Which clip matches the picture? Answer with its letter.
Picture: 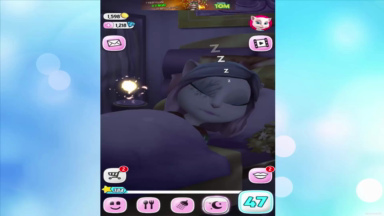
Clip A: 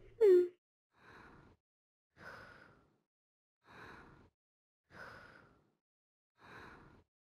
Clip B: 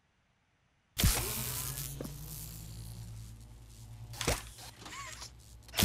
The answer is A